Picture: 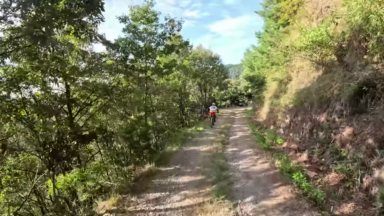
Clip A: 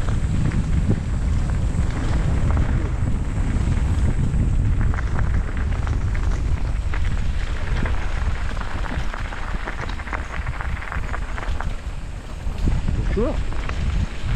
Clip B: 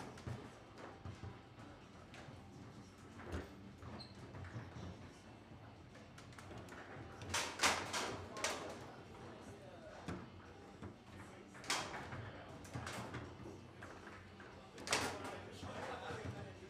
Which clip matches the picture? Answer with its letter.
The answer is A